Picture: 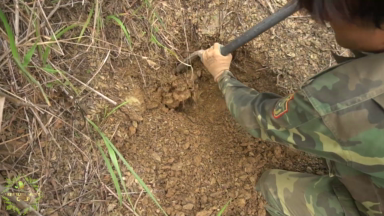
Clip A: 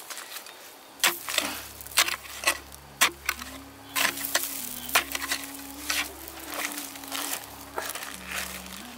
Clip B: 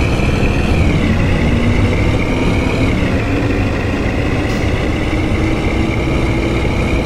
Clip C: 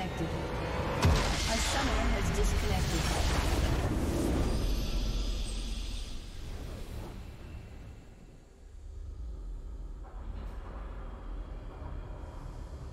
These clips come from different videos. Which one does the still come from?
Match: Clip A